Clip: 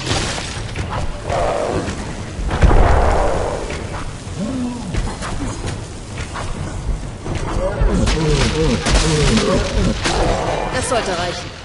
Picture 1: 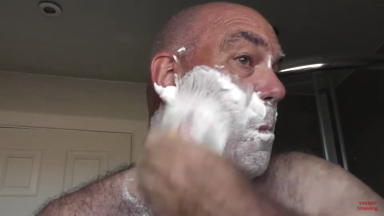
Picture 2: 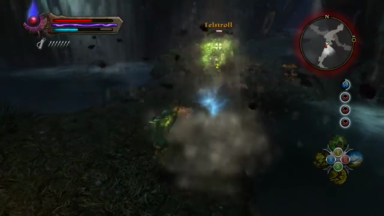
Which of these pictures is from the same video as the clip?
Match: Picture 2